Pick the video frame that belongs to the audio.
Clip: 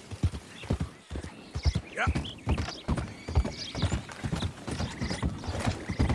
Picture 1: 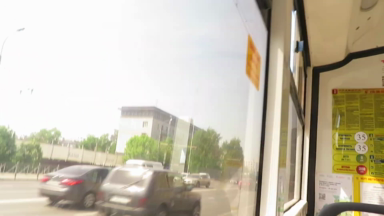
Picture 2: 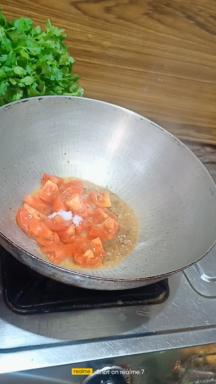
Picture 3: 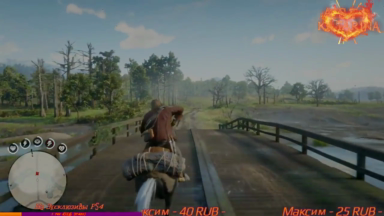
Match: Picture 3